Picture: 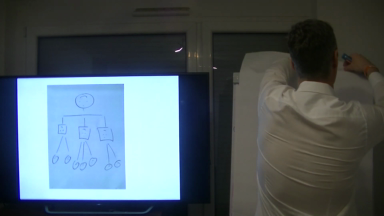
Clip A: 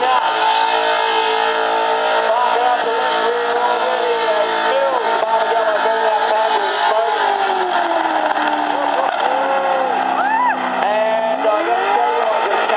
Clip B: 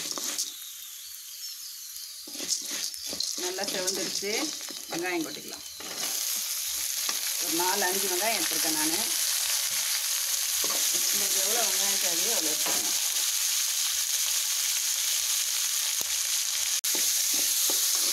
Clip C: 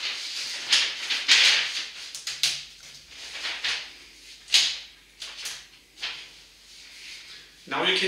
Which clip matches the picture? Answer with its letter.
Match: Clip C